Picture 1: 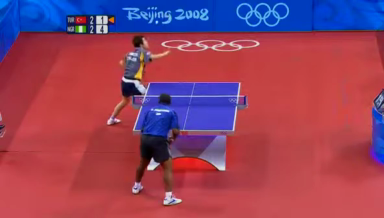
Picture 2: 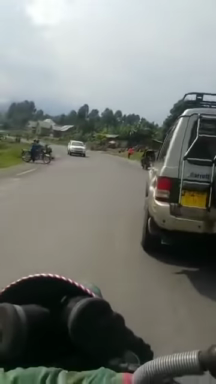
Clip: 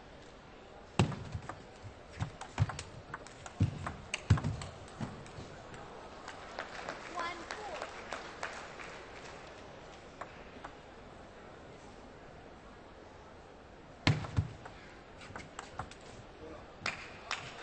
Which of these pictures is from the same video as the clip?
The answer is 1